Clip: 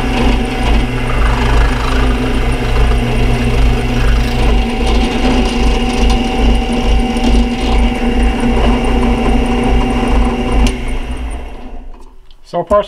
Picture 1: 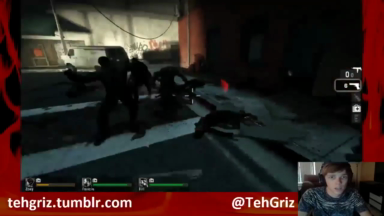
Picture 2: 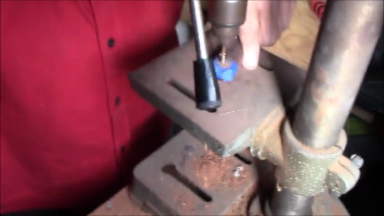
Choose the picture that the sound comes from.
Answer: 2